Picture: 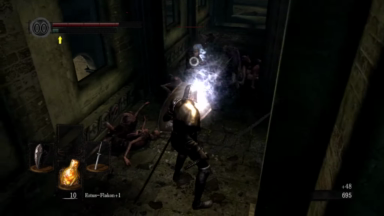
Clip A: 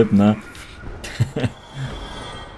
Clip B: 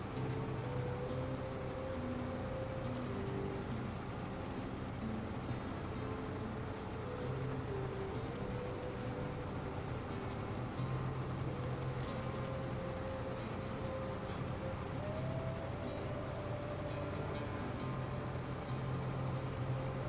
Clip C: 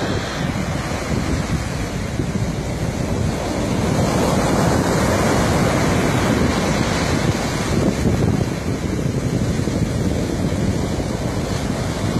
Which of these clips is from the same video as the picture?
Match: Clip A